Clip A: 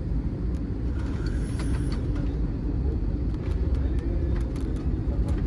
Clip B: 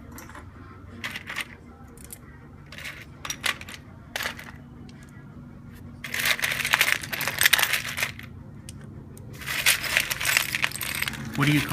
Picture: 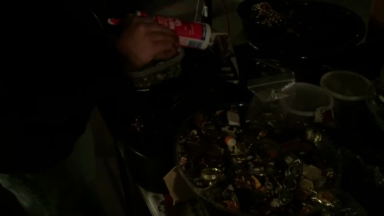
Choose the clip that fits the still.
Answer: B